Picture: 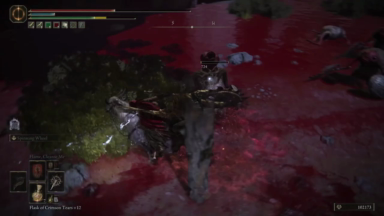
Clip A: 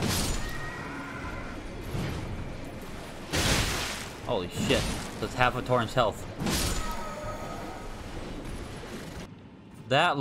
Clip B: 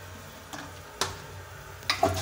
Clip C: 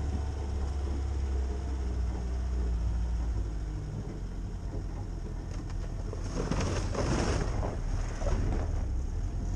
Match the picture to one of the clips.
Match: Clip A